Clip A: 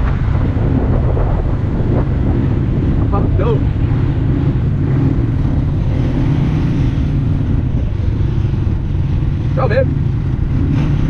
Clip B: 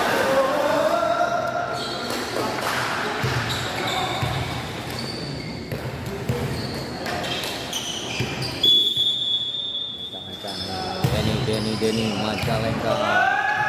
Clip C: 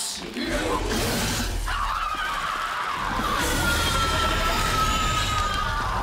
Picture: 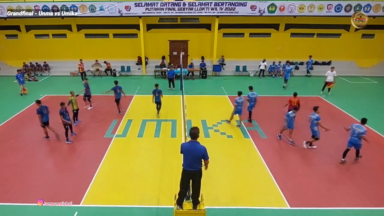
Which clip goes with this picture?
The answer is B